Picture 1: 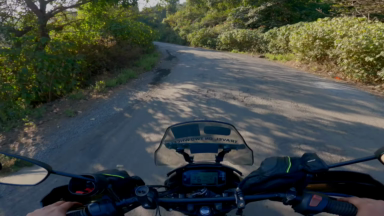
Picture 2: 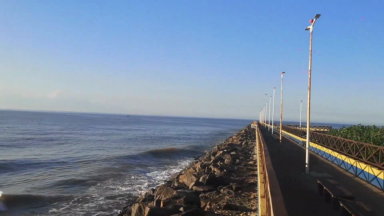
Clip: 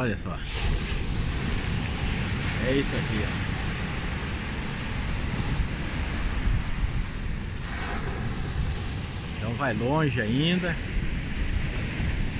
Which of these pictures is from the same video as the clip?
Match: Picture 2